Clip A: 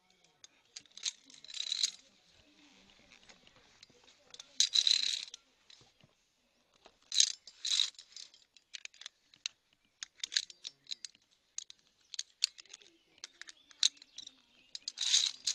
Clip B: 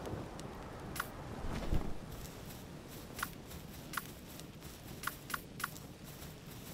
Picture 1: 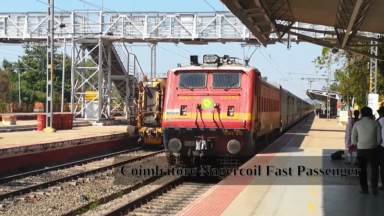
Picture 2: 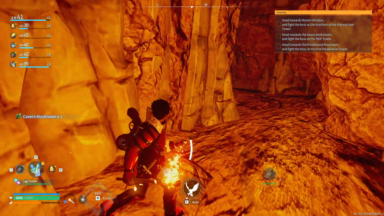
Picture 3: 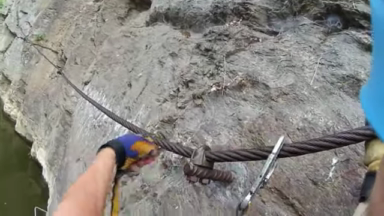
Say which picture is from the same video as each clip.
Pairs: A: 3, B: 2